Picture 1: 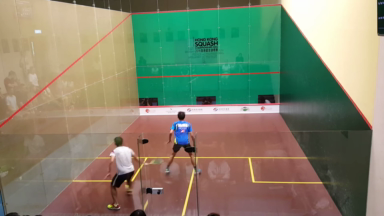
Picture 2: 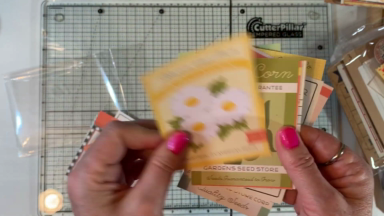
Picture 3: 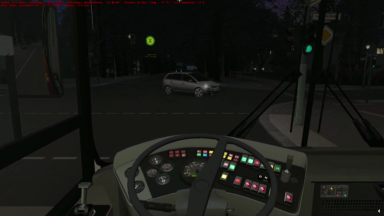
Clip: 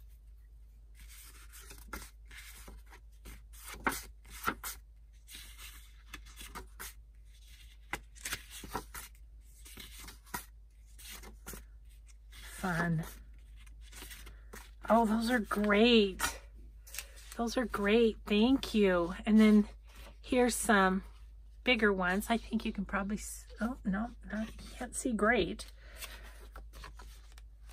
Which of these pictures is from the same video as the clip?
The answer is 2